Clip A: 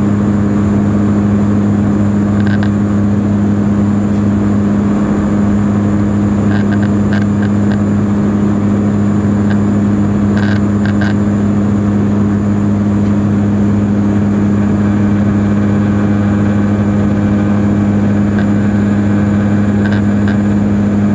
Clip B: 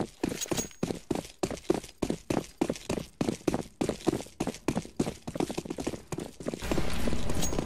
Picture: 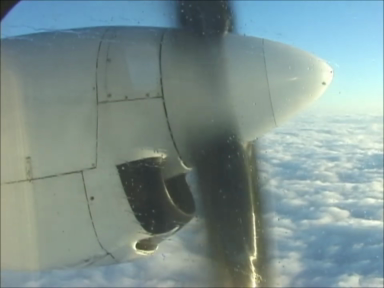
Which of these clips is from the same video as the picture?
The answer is A